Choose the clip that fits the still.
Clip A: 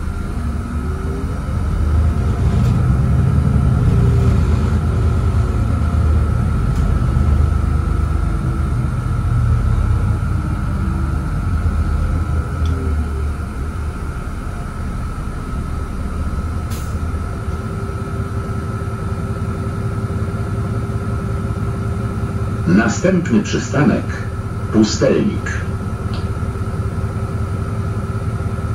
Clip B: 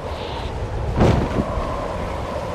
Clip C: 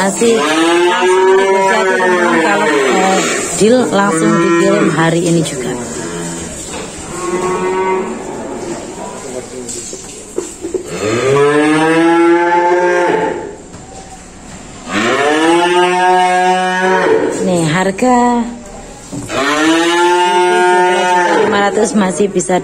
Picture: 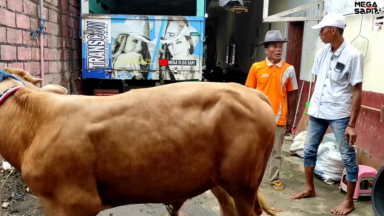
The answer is C